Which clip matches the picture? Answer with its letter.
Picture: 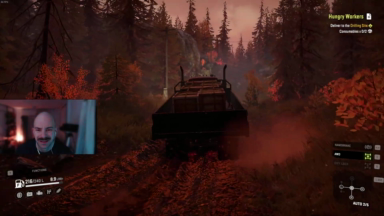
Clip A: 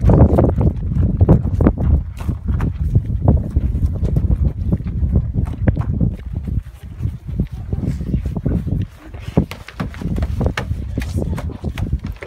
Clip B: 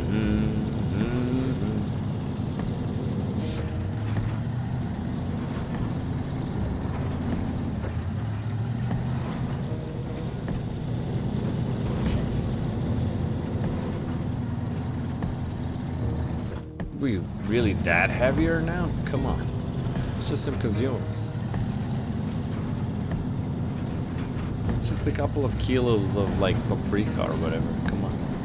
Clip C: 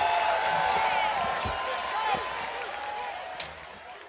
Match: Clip B